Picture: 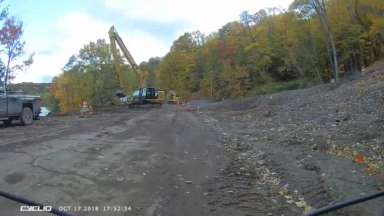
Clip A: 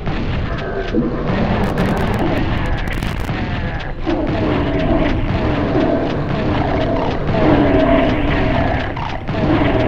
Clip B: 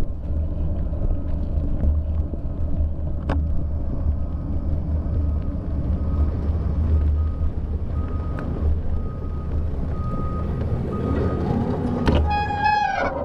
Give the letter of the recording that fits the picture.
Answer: B